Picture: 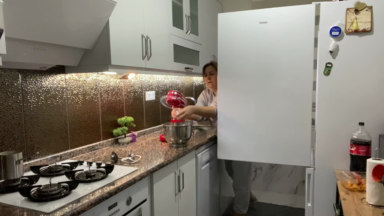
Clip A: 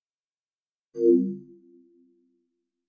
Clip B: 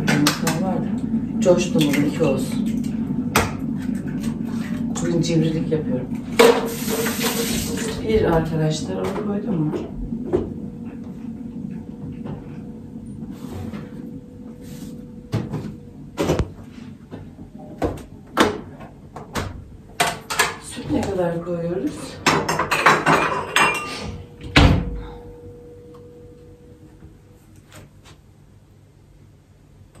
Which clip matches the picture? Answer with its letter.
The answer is B